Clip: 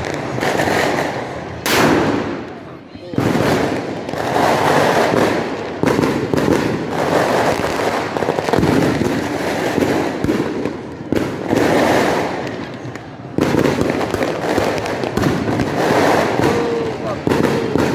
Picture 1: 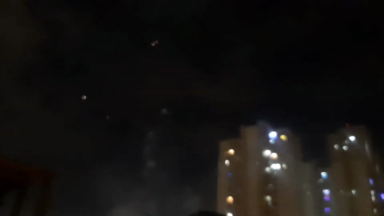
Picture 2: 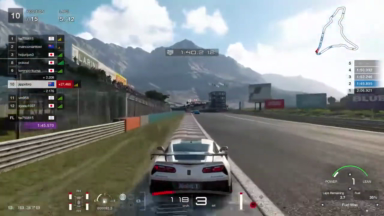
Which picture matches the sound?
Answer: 1